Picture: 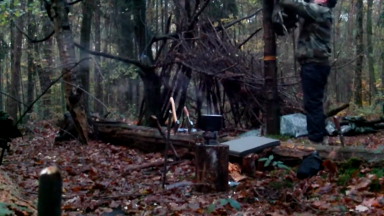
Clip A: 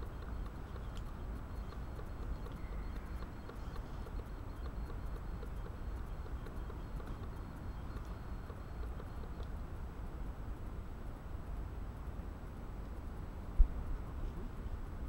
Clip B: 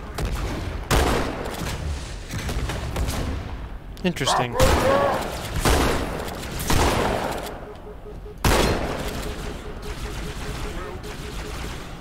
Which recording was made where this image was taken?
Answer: A